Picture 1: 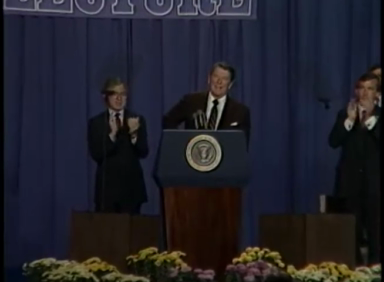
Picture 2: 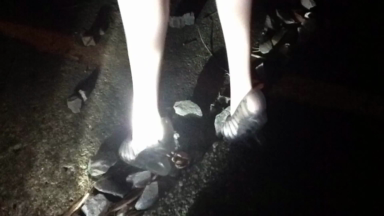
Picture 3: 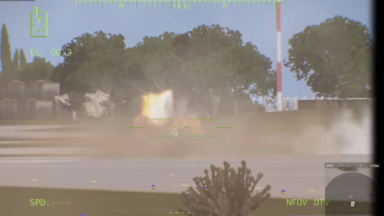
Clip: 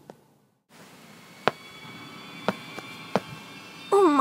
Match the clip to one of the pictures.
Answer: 2